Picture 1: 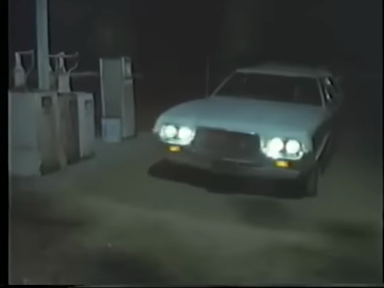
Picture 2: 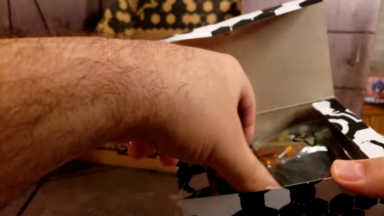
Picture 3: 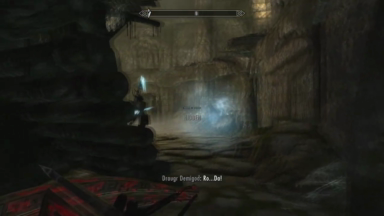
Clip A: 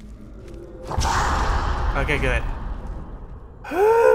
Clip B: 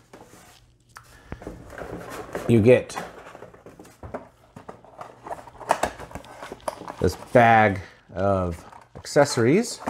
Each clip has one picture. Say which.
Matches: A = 3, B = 2